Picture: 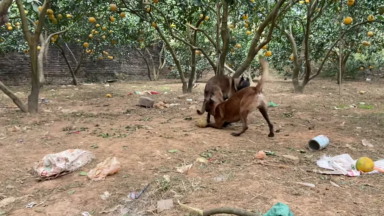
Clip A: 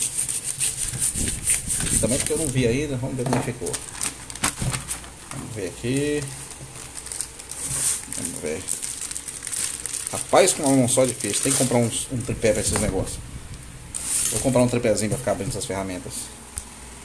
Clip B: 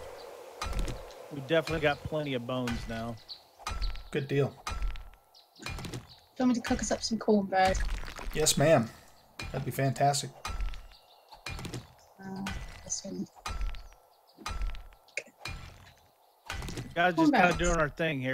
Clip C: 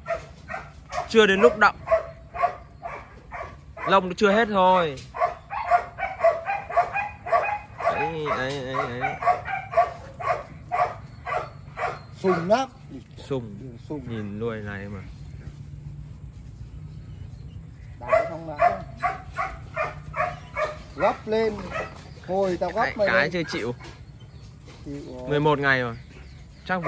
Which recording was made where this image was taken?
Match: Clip C